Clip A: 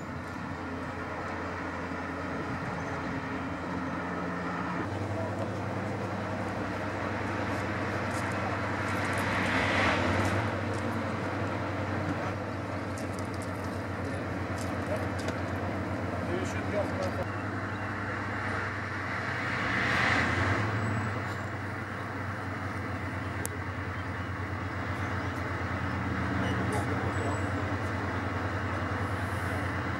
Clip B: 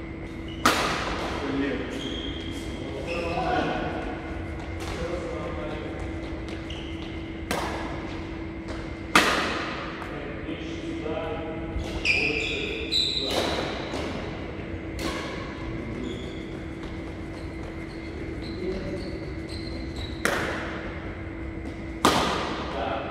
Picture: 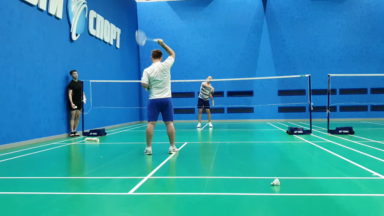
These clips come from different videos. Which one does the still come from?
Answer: B